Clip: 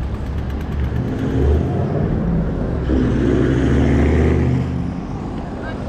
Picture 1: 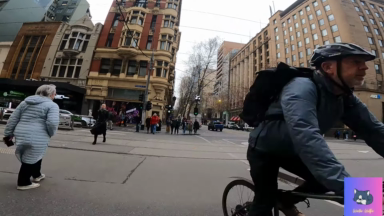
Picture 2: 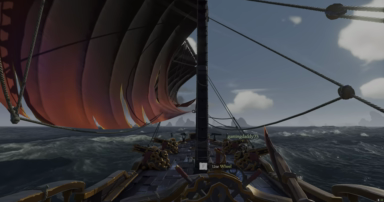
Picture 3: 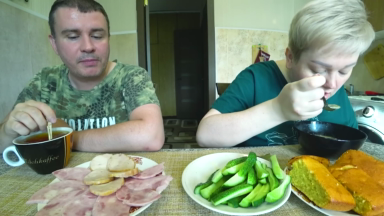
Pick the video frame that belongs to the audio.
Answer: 1